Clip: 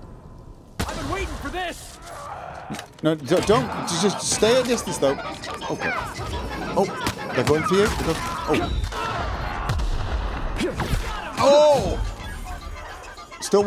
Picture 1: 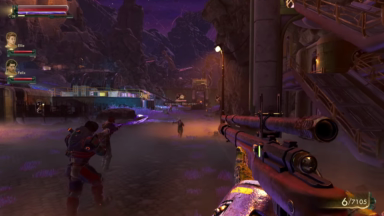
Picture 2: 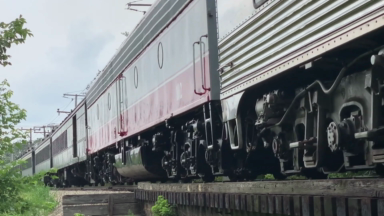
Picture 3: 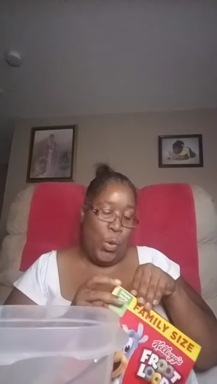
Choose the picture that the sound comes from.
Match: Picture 1